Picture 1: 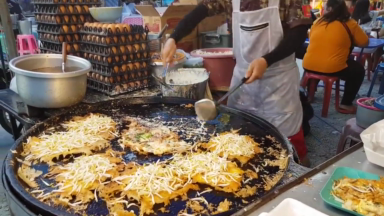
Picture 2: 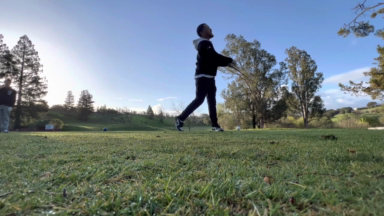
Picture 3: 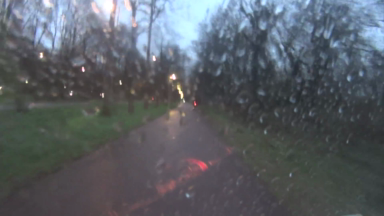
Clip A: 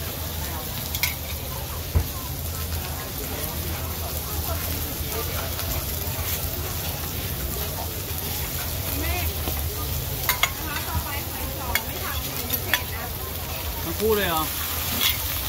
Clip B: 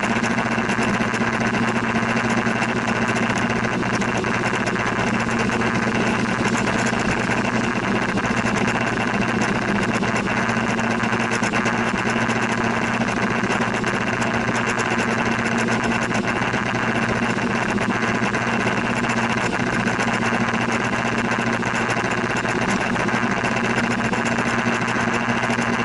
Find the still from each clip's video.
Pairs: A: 1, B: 3